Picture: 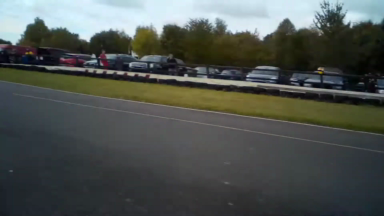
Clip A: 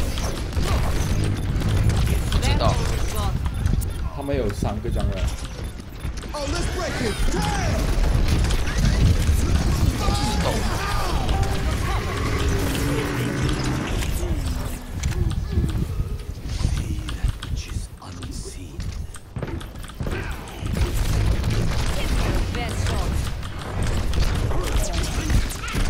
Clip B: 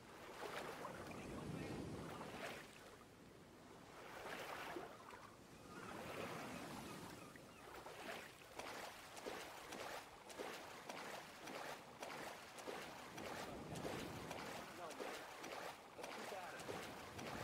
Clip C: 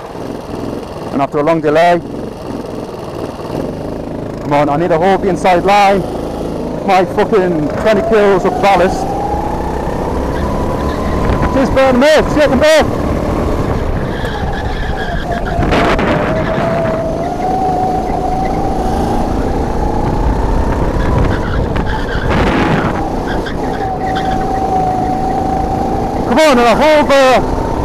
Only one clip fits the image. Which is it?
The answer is C